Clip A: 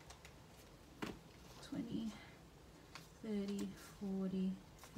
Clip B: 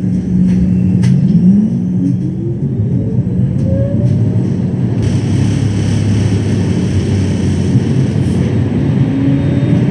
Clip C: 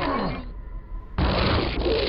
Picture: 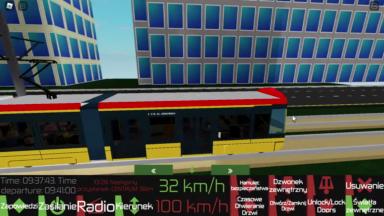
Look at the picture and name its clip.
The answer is B